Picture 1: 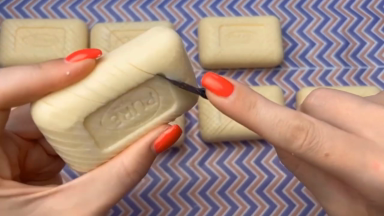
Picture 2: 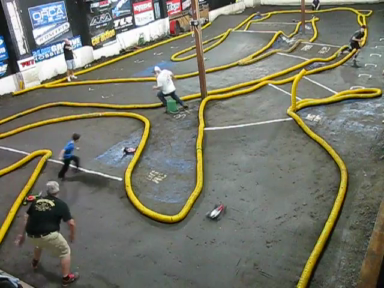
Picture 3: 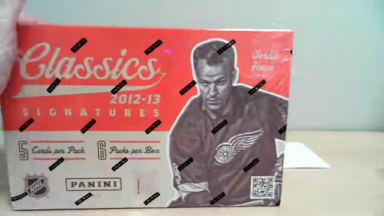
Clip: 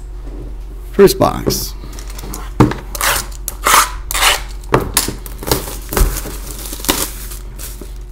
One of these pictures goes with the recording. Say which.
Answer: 3